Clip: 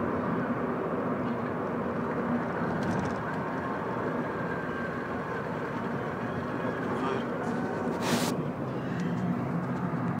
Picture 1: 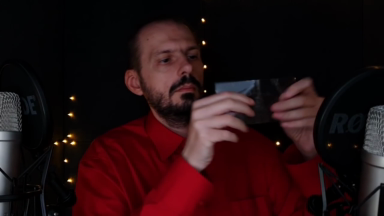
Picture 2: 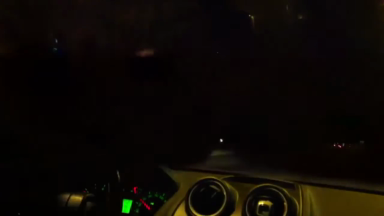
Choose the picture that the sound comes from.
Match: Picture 2